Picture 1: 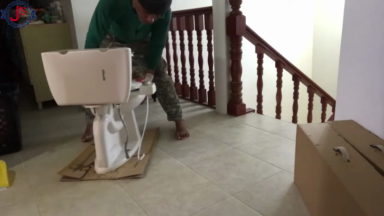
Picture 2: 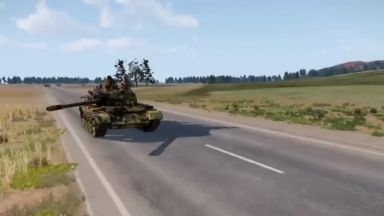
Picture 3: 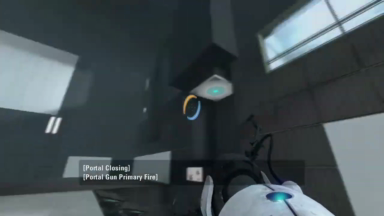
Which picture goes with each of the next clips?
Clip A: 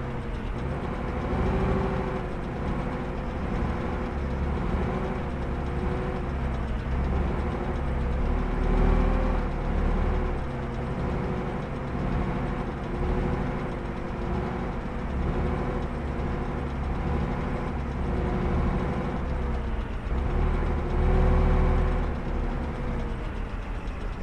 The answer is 2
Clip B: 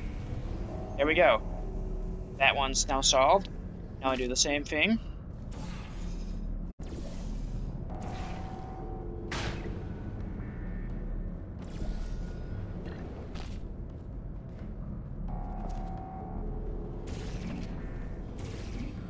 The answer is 3